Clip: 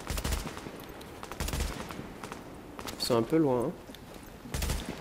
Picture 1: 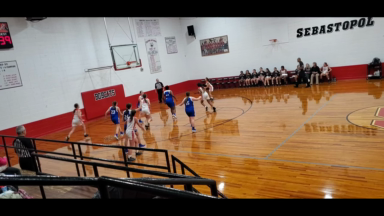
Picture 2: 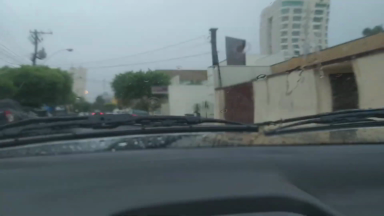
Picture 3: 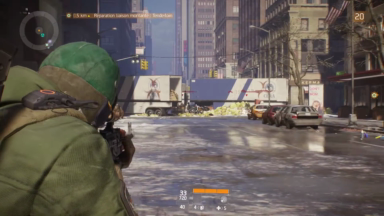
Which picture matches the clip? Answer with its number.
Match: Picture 3